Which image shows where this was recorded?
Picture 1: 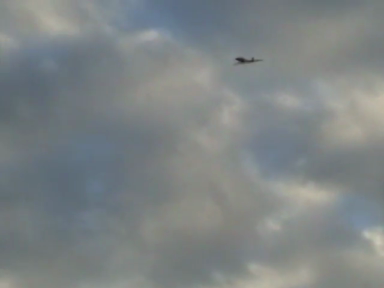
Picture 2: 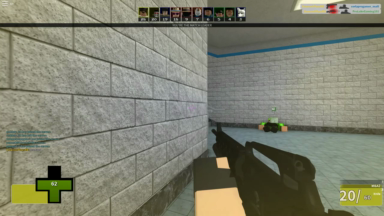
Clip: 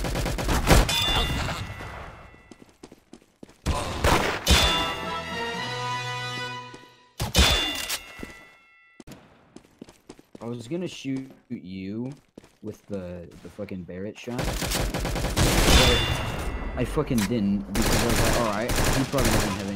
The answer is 2